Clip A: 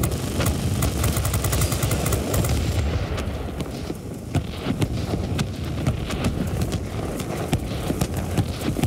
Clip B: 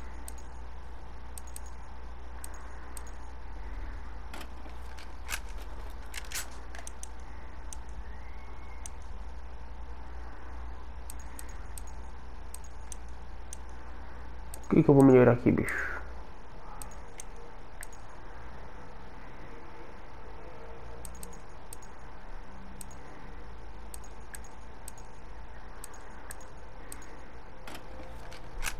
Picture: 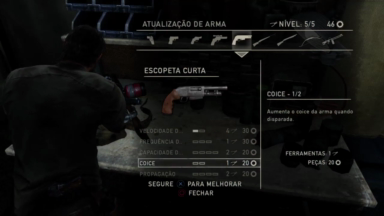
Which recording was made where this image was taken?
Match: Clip B